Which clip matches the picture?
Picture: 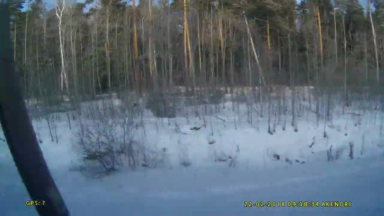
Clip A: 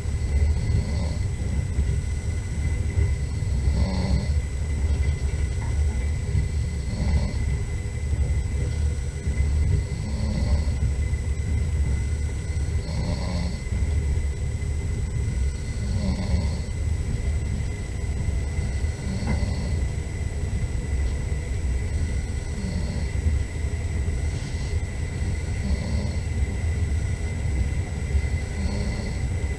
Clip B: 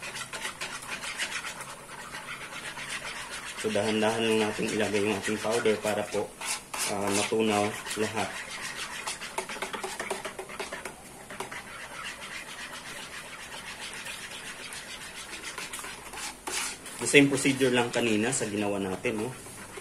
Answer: A